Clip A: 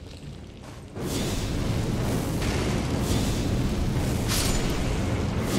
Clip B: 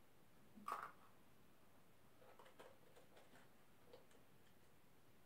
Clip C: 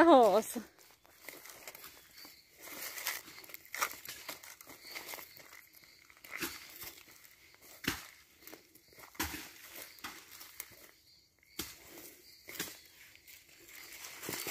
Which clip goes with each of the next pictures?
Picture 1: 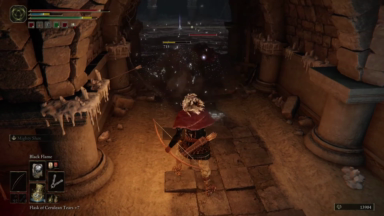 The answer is A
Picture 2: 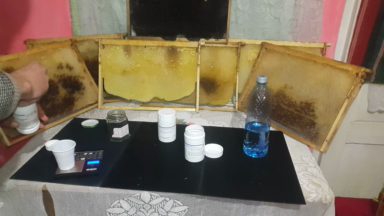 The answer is B